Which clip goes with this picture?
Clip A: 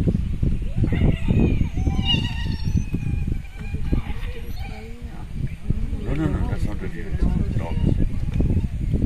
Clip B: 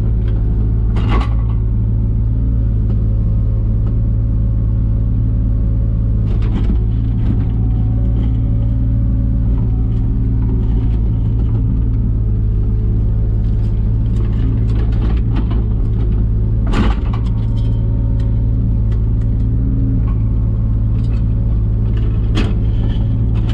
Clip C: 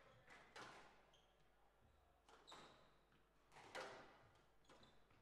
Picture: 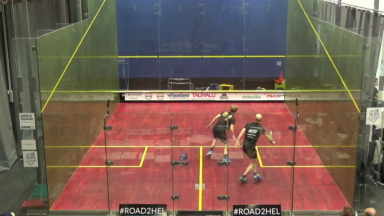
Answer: C